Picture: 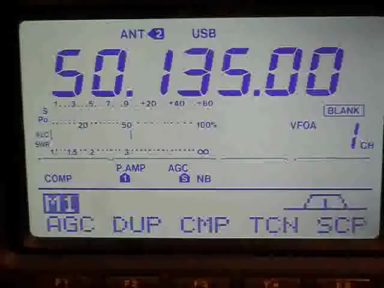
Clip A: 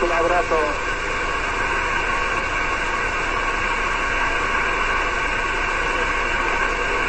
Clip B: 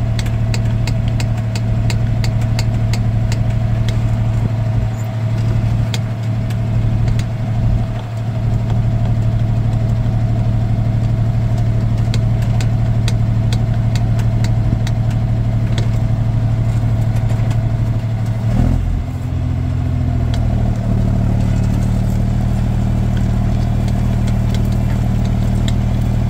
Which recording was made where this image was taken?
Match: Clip A